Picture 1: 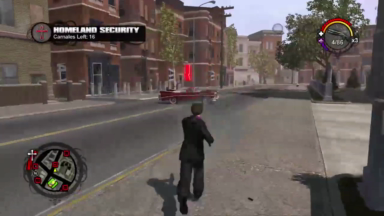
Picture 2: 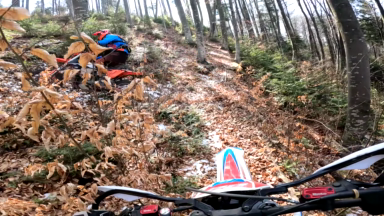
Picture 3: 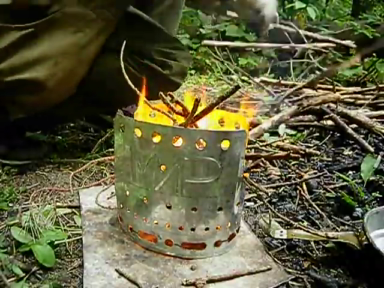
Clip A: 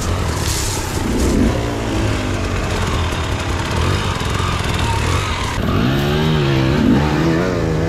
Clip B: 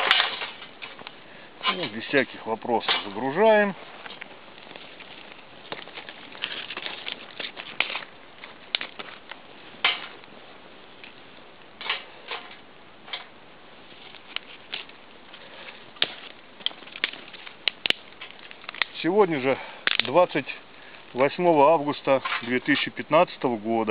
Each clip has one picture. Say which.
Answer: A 2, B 3